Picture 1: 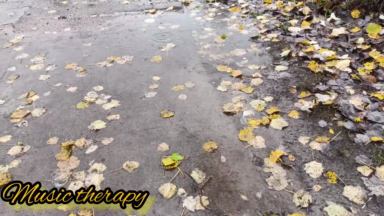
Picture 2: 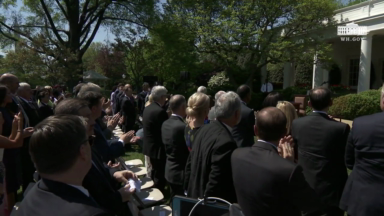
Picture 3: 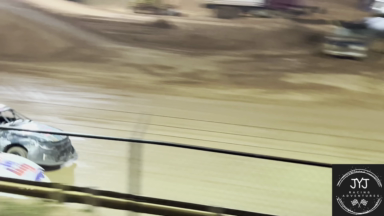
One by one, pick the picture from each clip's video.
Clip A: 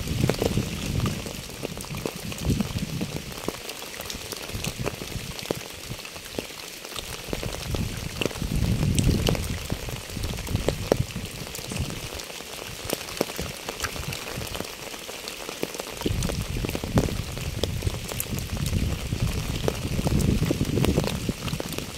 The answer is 1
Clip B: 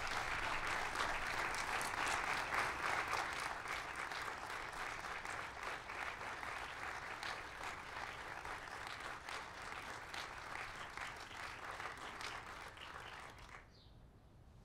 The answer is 2